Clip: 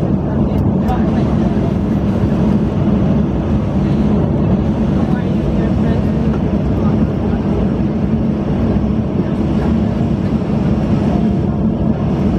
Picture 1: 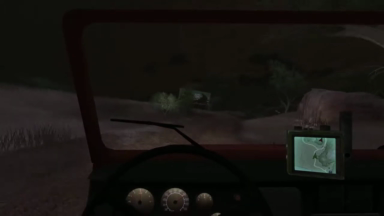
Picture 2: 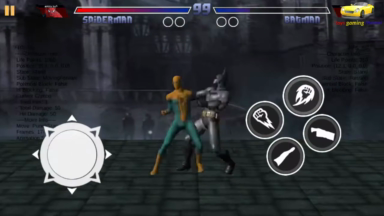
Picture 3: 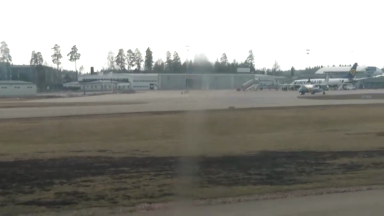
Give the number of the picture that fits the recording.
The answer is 3